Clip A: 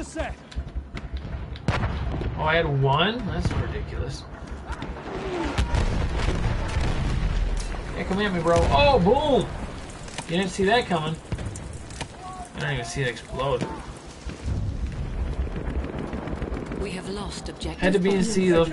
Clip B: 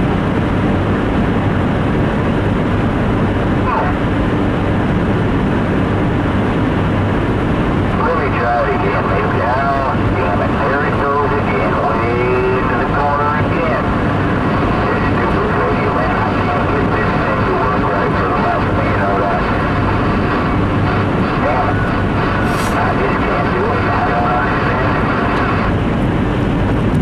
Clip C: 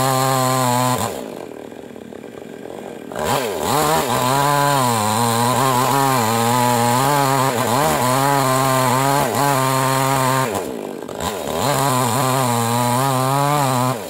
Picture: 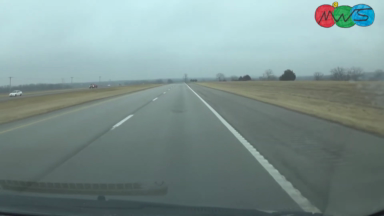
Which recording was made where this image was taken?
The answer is B